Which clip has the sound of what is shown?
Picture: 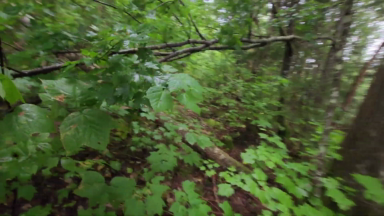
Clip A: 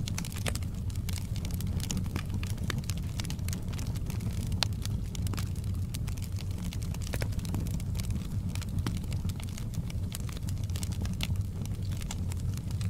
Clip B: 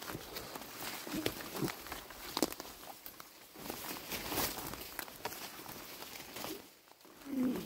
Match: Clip B